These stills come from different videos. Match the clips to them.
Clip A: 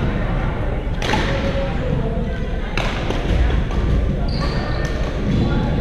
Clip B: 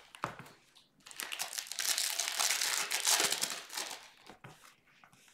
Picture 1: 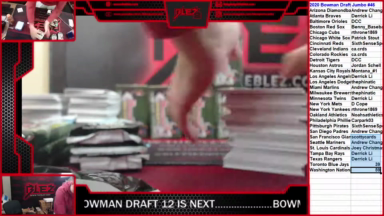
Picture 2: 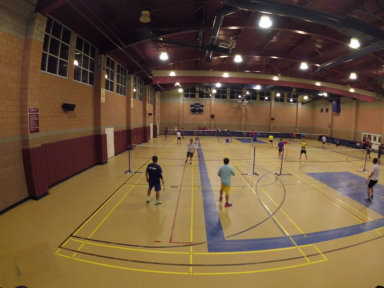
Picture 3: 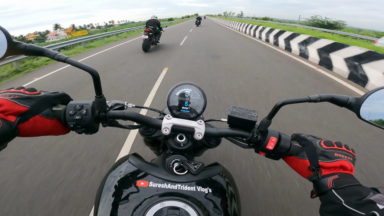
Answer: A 2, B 1